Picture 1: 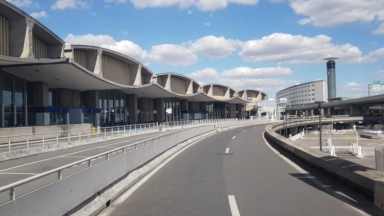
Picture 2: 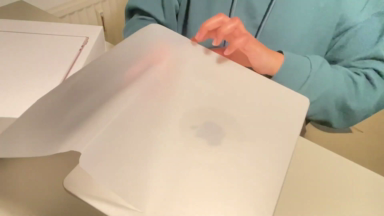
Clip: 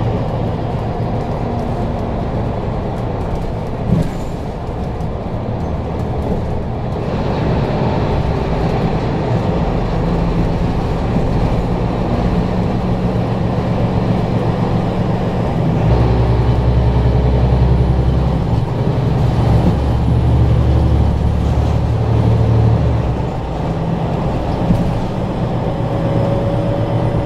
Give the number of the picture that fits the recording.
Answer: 1